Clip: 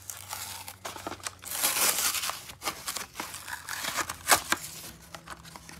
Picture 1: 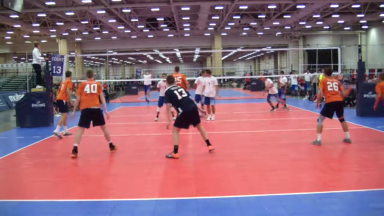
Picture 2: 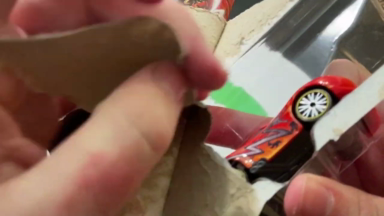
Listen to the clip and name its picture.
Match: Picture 2